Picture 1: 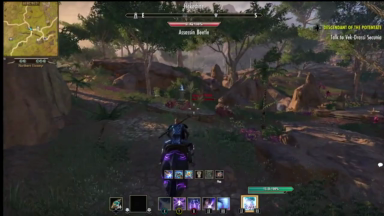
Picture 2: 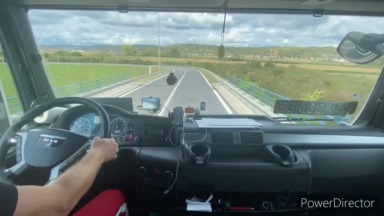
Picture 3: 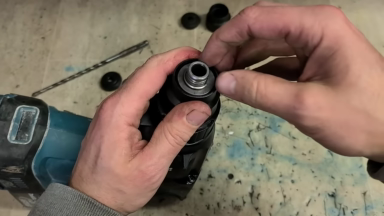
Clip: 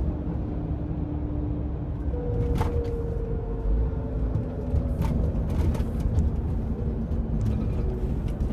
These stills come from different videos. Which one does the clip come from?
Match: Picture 2